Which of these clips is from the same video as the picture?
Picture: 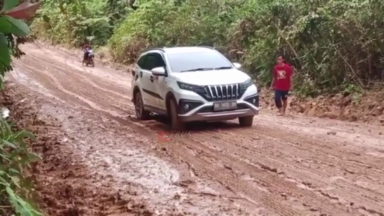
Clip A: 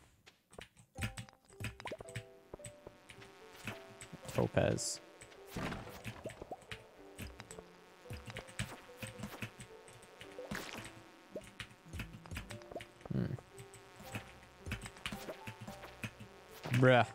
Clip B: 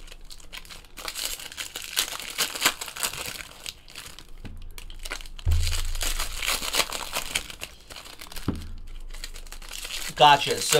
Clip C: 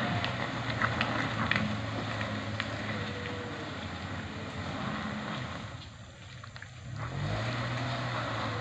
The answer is C